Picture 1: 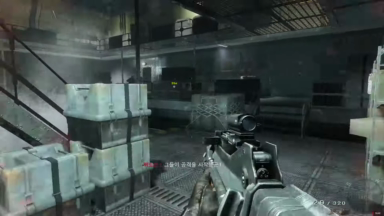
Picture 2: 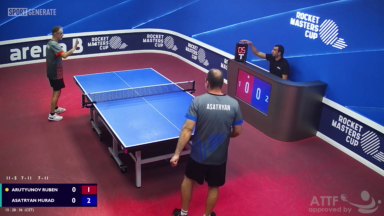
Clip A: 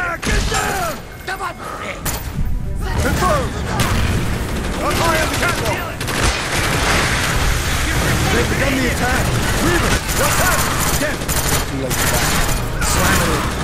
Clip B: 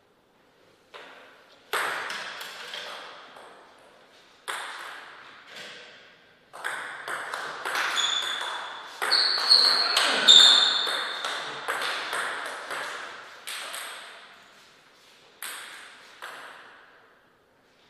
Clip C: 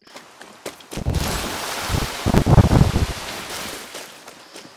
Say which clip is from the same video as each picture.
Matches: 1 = A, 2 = B